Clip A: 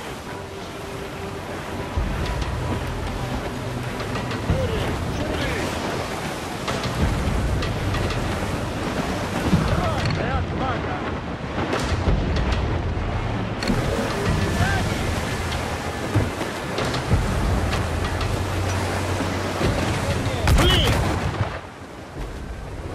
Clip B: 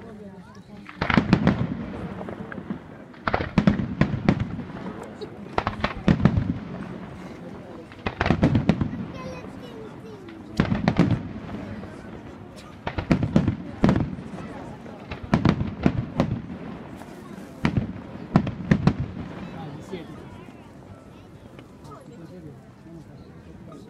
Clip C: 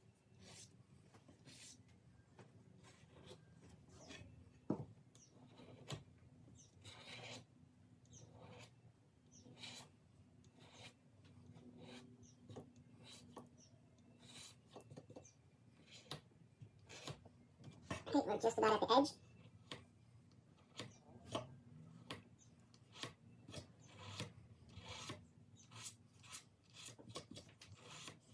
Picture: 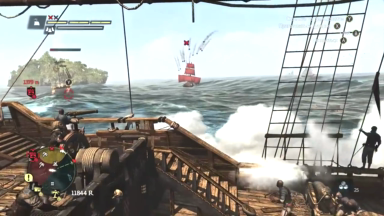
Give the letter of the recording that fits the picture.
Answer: A